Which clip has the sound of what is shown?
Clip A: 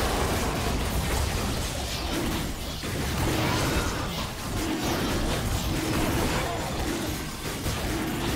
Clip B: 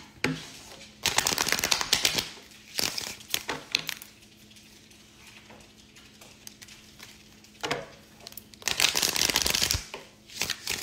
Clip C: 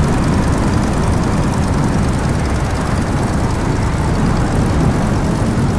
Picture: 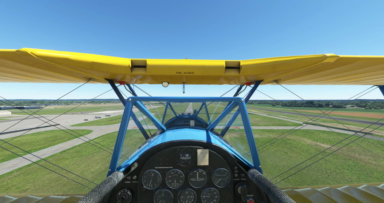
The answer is C